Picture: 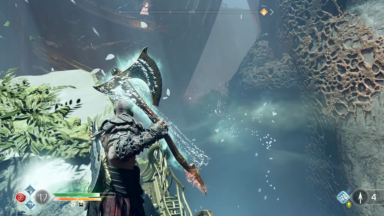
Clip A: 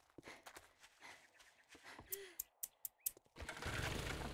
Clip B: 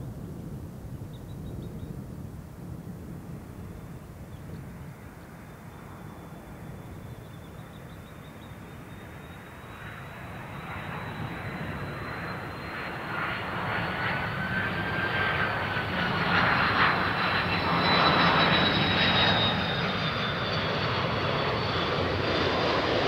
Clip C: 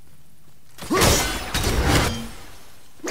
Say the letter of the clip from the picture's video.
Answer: C